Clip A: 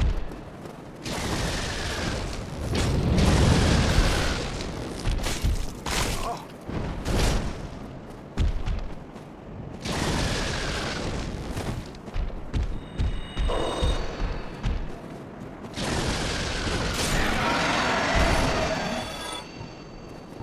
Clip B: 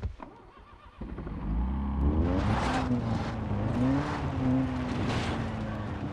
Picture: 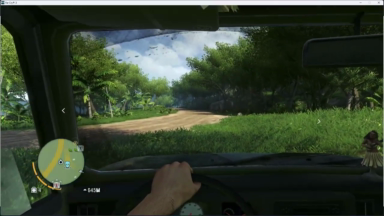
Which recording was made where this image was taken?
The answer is B